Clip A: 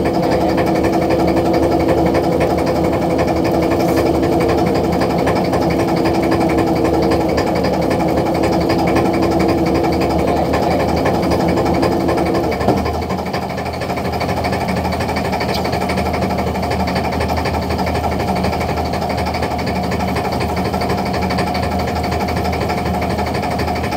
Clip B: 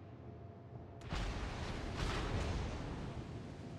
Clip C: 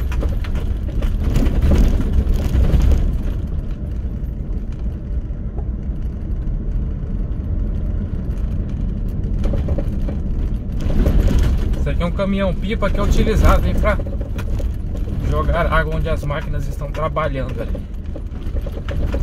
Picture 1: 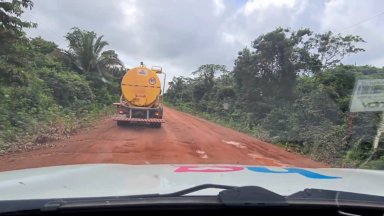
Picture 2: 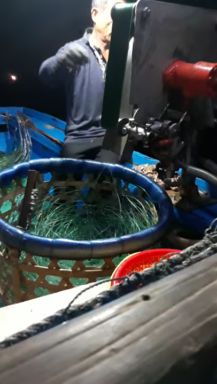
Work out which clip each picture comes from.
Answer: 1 C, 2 A